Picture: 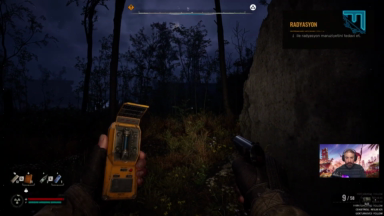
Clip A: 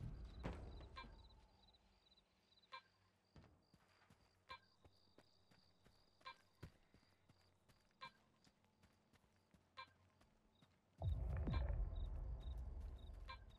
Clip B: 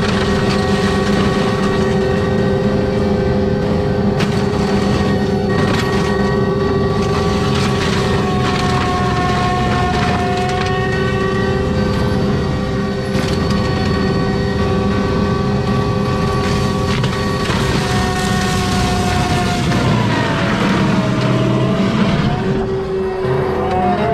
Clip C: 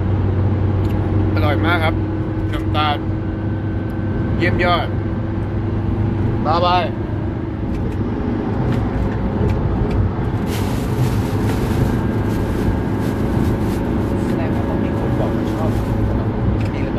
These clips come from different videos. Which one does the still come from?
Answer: A